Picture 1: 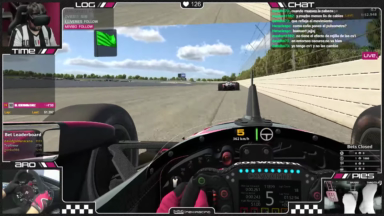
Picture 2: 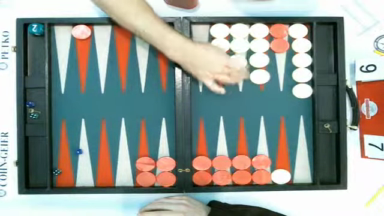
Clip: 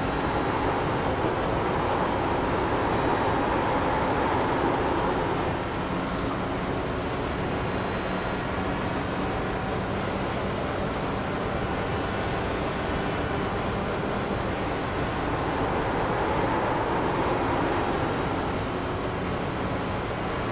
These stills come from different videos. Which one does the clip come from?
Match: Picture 1